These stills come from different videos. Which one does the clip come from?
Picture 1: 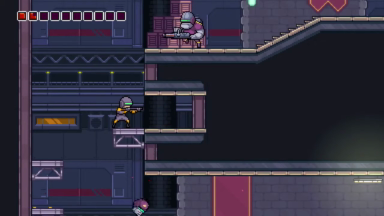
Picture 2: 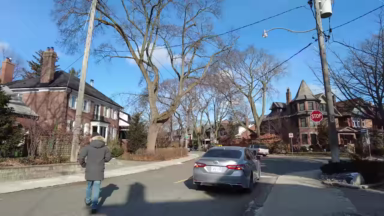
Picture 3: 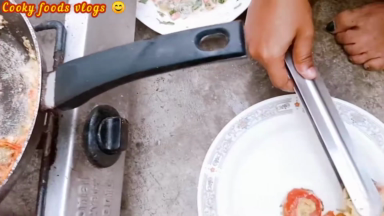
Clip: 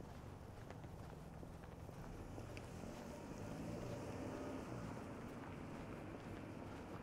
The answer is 2